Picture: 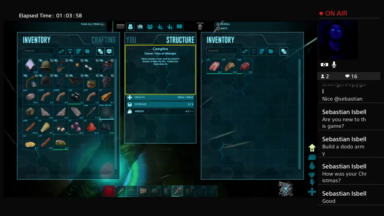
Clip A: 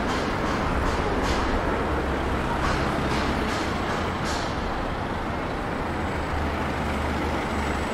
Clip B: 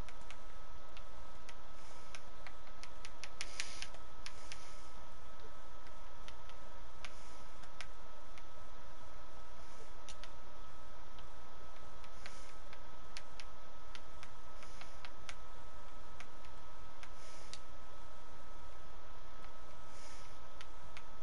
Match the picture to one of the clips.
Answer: B